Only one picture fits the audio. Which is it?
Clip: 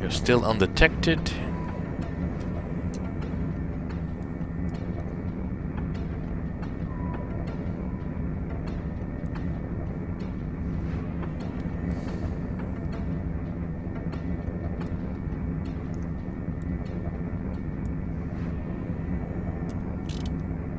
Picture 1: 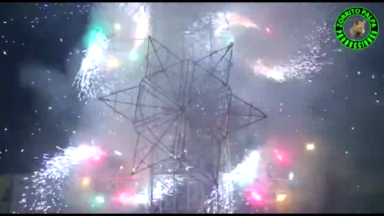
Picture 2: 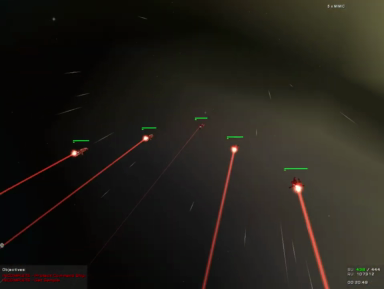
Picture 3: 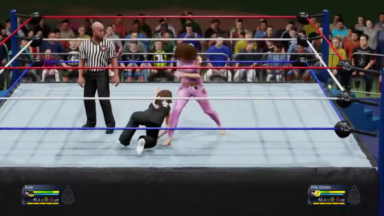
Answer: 2